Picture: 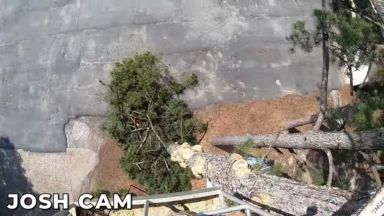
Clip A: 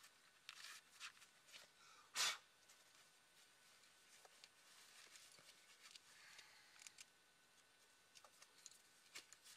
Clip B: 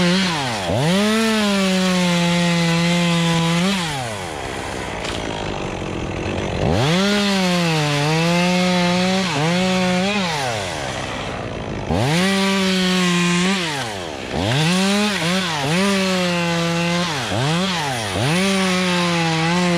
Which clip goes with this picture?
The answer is B